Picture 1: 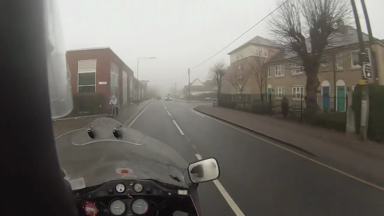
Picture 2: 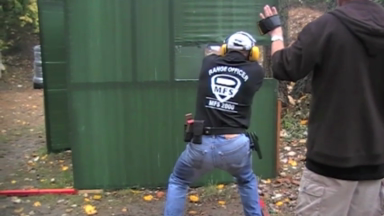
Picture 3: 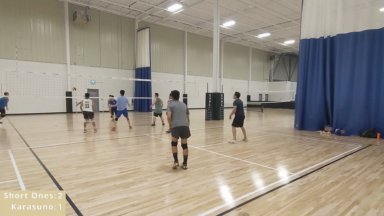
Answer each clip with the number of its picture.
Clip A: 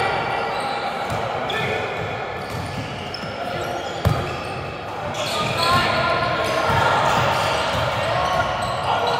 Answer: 3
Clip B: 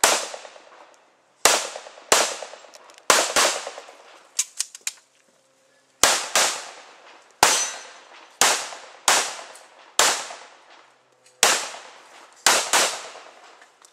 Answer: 2